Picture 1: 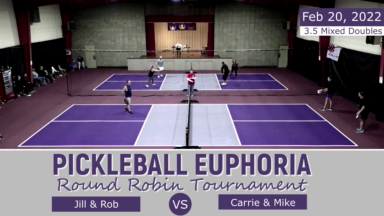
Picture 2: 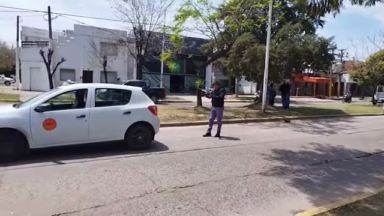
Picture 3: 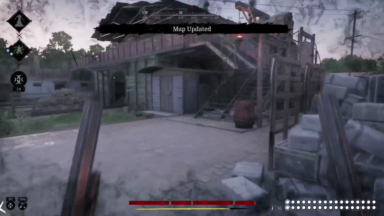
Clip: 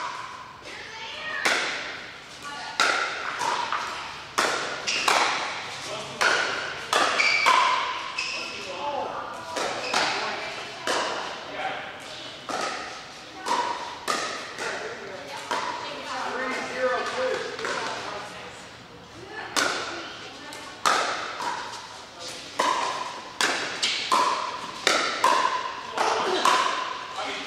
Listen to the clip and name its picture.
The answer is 1